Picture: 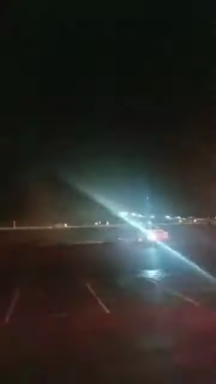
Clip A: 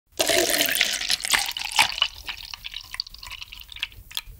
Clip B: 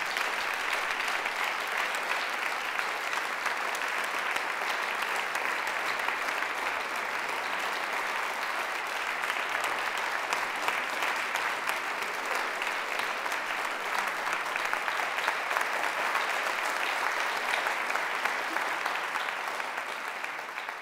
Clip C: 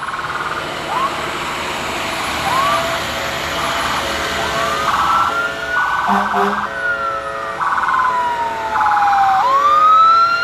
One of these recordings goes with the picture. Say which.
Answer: C